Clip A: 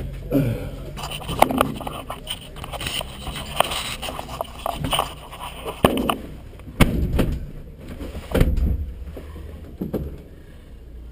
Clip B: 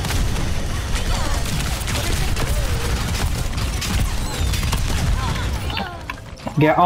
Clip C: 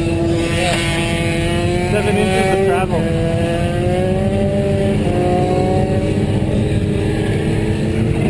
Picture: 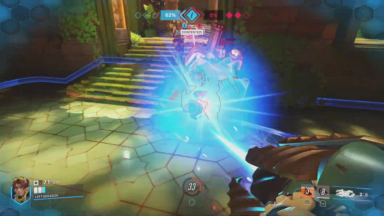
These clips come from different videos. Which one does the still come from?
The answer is B